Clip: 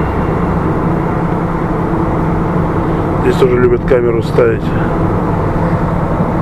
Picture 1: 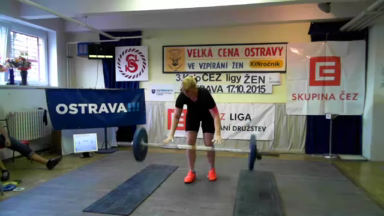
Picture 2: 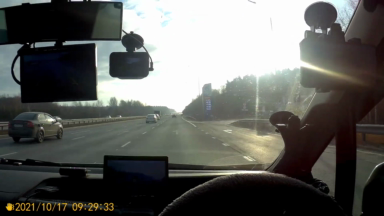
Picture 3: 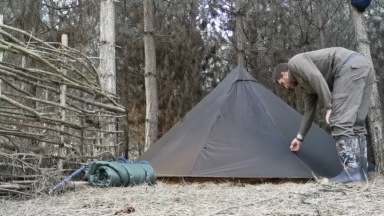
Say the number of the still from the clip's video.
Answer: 2